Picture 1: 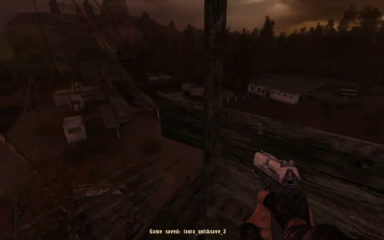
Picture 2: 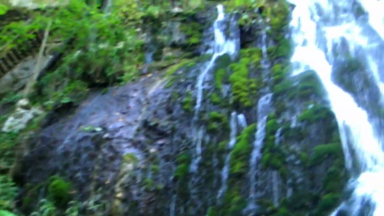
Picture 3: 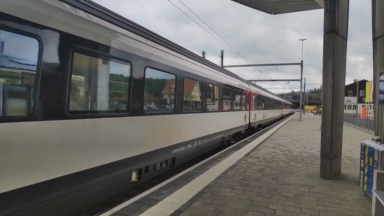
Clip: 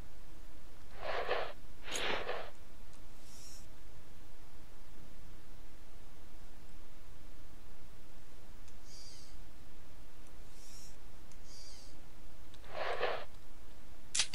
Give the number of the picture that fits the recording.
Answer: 1